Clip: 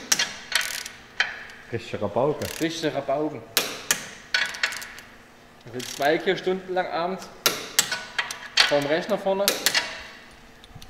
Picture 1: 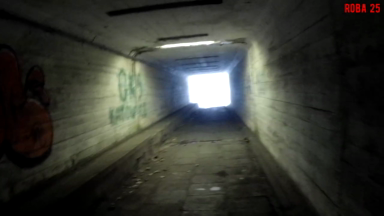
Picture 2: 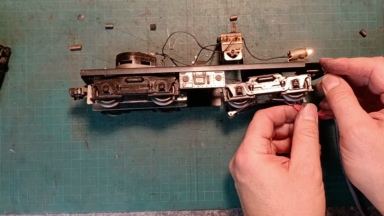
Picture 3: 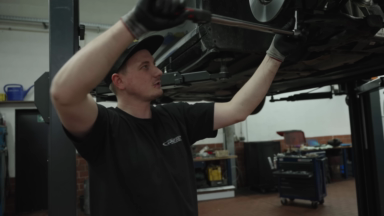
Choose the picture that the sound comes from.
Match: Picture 3